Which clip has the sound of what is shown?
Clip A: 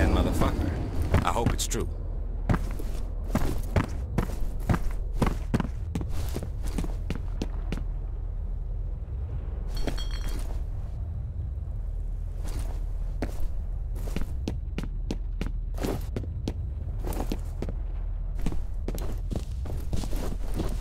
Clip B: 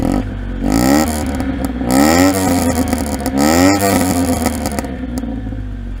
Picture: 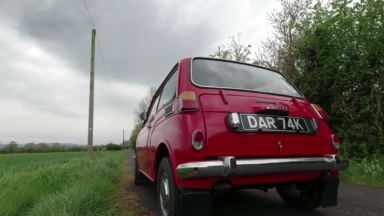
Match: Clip B